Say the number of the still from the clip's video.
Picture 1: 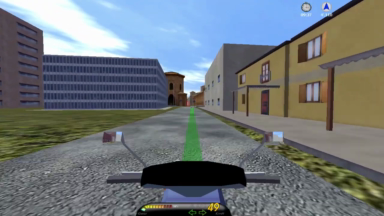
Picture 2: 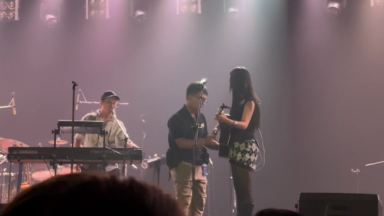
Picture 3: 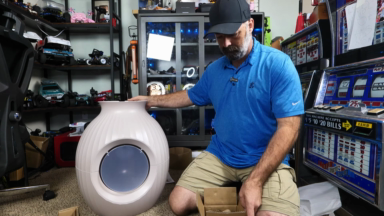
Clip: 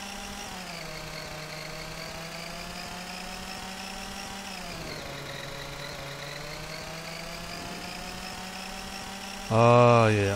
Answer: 1